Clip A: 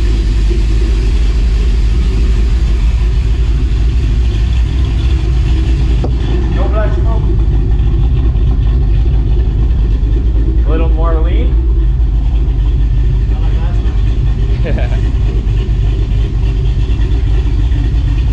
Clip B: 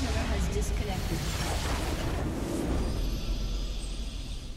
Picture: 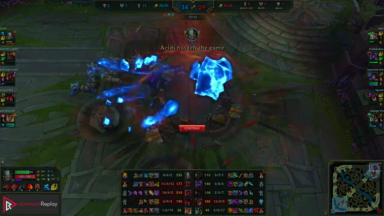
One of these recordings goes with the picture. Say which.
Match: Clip B